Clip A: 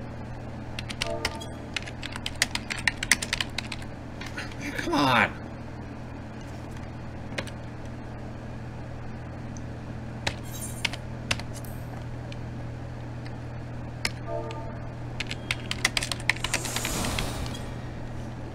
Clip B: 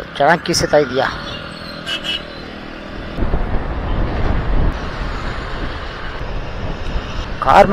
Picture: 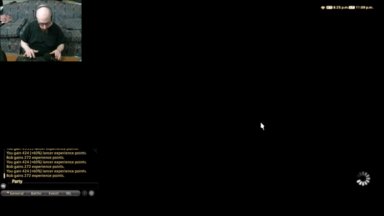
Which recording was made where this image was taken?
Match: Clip A